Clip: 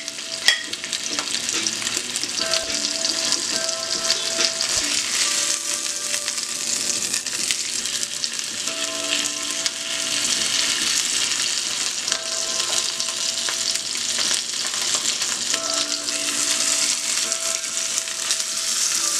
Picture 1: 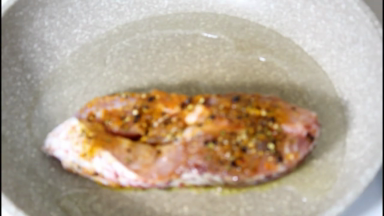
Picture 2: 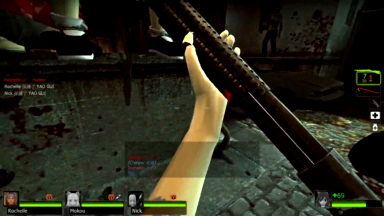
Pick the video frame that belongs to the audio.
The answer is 1